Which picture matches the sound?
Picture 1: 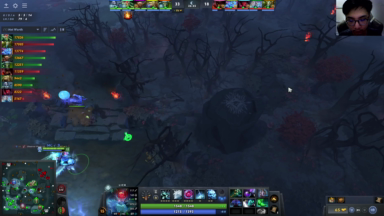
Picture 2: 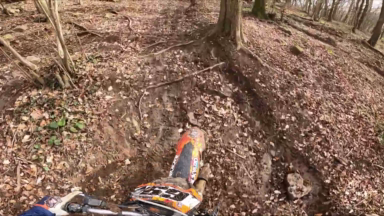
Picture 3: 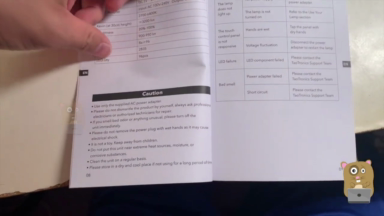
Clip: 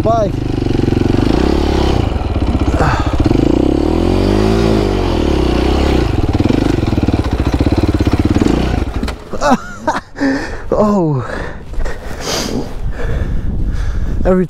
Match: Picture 2